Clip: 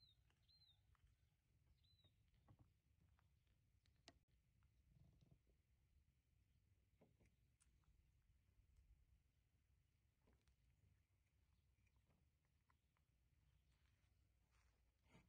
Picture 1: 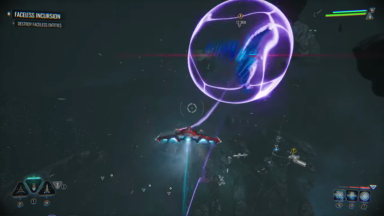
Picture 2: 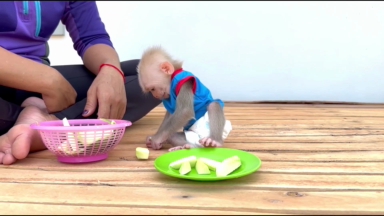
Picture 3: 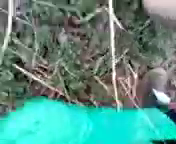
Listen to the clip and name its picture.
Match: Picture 2